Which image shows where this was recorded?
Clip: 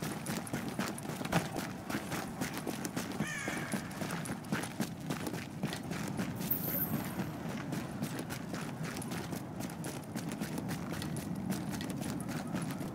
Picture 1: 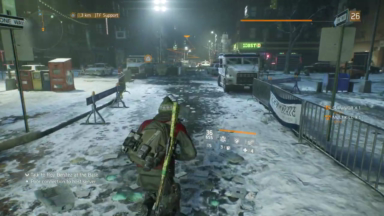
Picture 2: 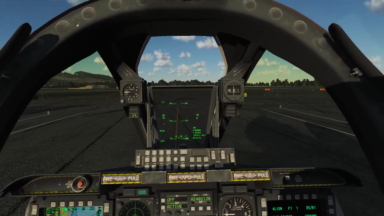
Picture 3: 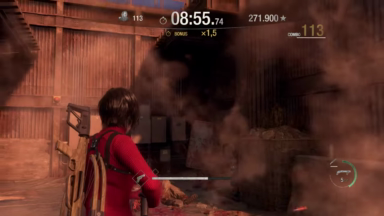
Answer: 1